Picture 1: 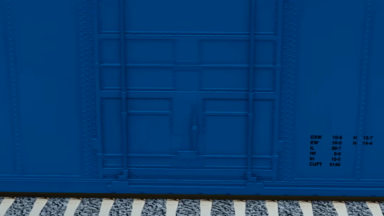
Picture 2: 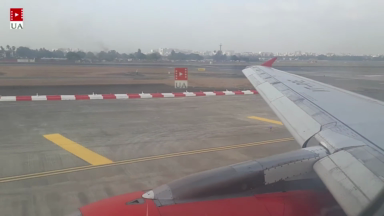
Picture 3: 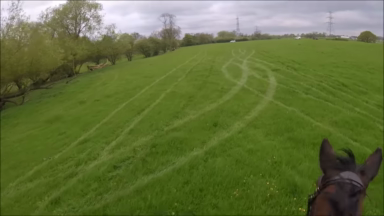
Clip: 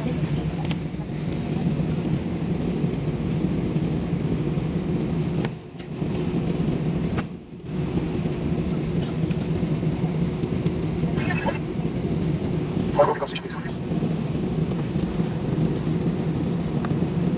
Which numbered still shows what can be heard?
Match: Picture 2